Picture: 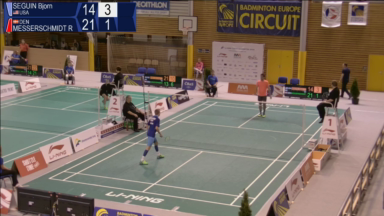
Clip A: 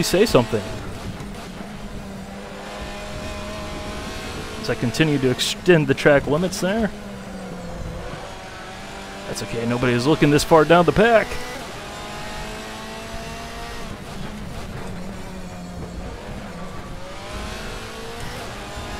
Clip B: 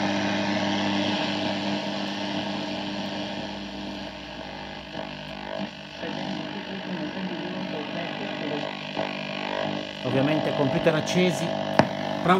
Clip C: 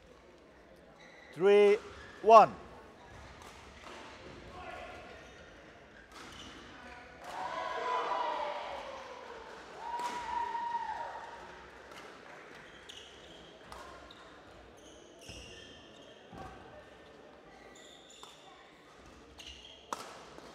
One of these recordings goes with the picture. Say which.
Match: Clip C